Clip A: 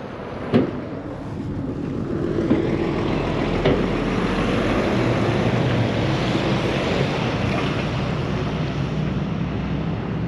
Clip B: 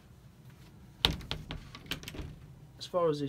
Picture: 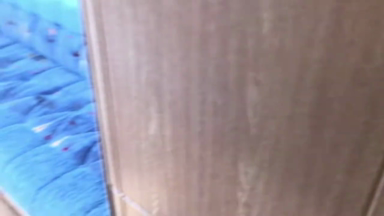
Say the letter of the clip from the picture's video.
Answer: B